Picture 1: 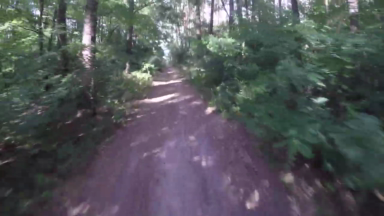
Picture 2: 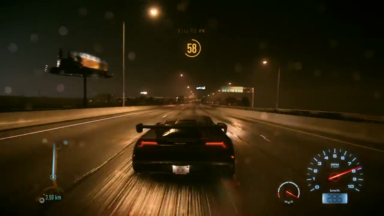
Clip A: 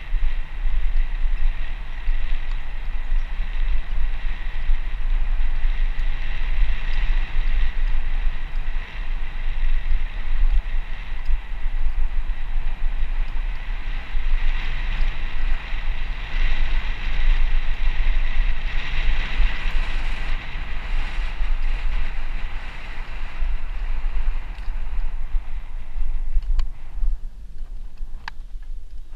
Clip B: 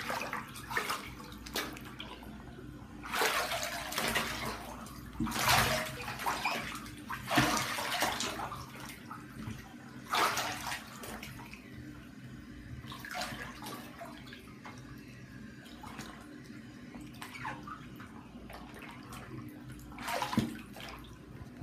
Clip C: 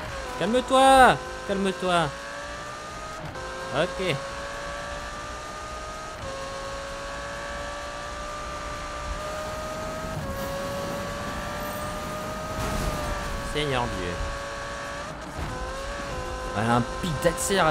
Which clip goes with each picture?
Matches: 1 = A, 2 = C